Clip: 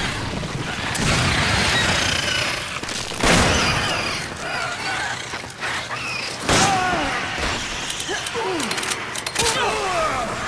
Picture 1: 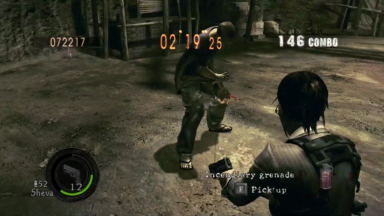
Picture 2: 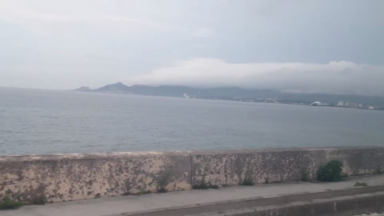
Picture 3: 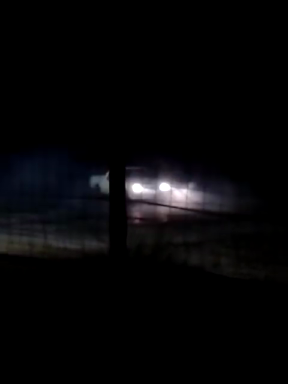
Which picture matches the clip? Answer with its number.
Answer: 1